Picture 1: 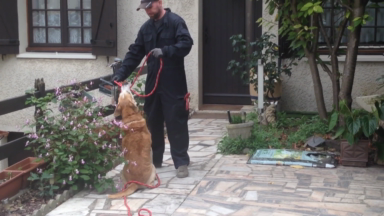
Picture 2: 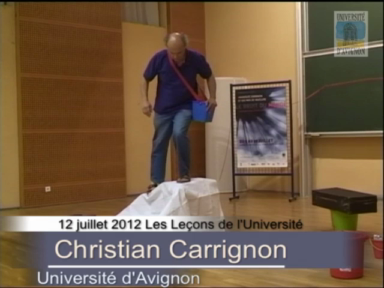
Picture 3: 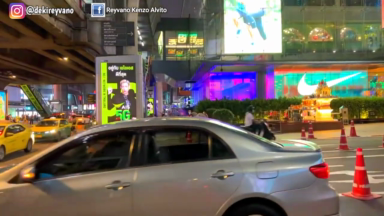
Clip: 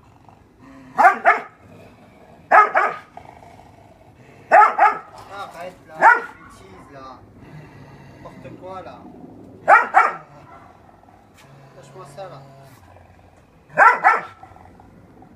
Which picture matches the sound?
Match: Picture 1